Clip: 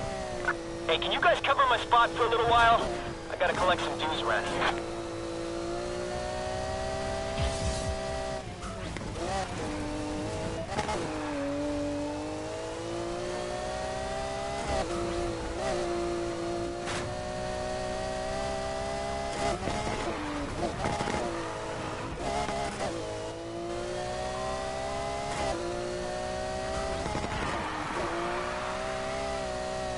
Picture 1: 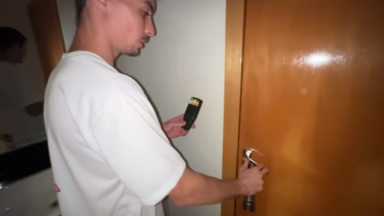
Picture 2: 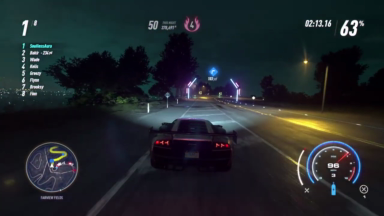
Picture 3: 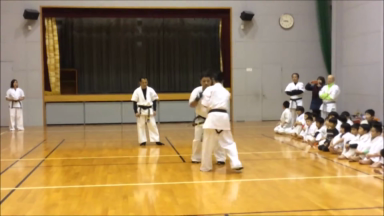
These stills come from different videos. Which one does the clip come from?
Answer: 2